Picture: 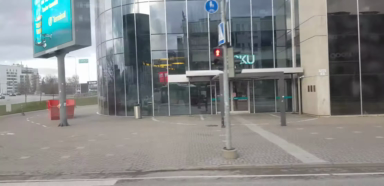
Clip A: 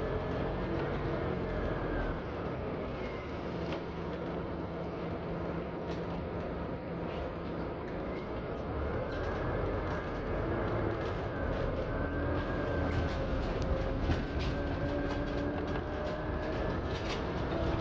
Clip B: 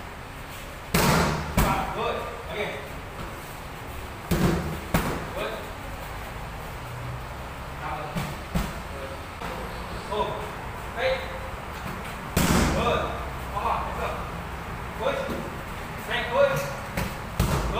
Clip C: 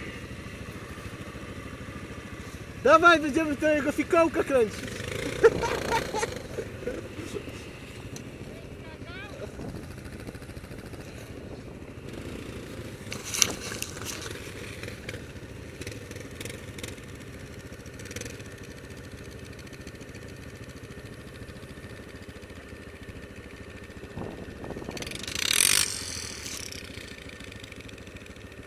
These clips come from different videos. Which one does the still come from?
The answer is A